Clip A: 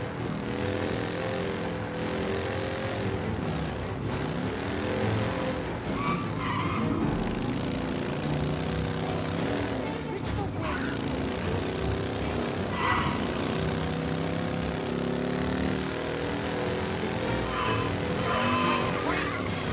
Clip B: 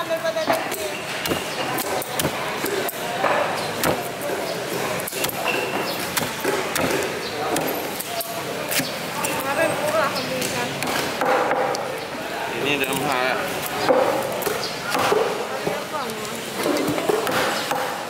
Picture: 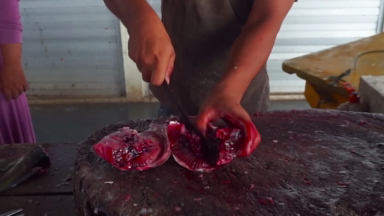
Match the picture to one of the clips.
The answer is B